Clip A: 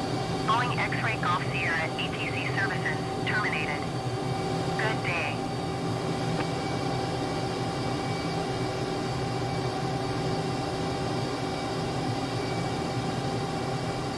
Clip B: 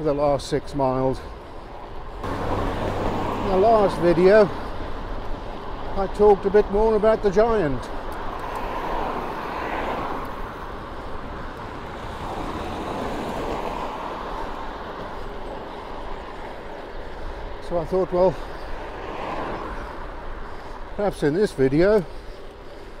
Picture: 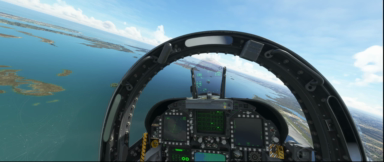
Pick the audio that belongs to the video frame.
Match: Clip A